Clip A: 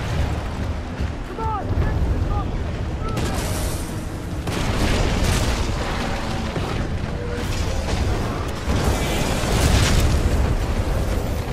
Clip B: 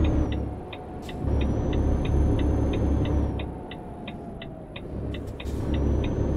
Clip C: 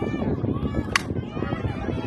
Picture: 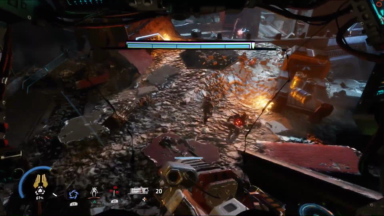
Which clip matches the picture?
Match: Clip A